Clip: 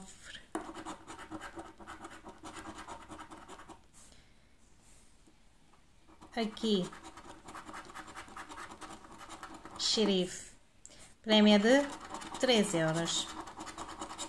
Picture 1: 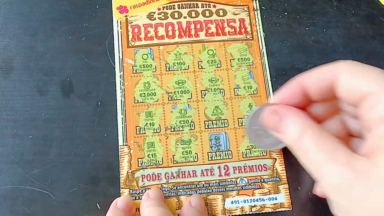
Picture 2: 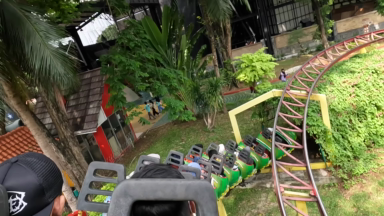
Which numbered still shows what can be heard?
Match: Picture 1